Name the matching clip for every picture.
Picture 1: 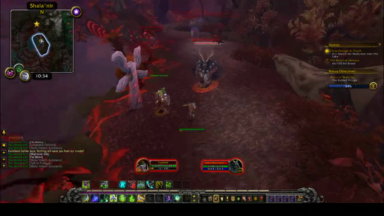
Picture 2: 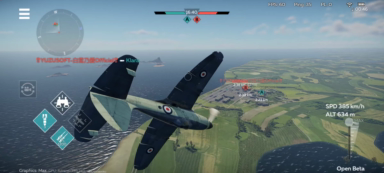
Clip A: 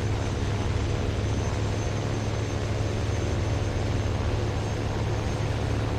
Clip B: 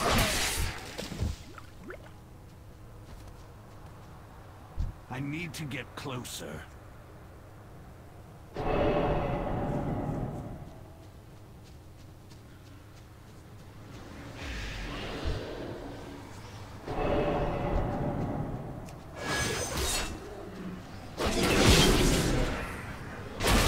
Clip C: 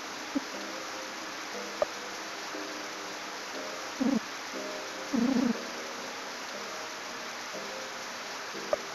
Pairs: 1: B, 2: A